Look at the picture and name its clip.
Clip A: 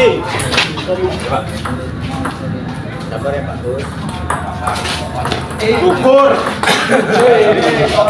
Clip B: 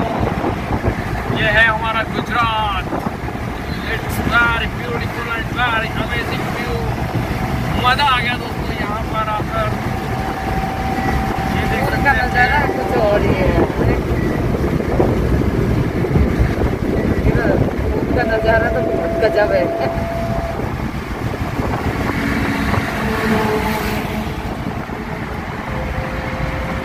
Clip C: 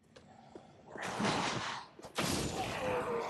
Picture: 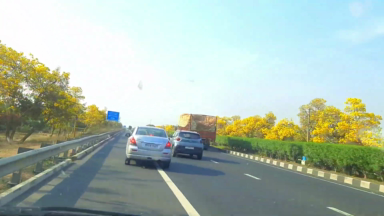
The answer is B